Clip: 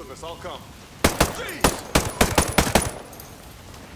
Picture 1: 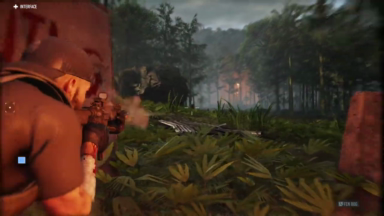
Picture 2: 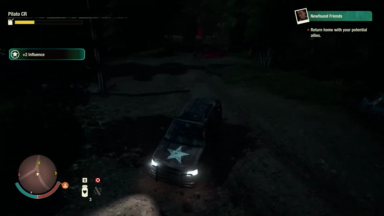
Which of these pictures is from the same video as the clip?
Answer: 1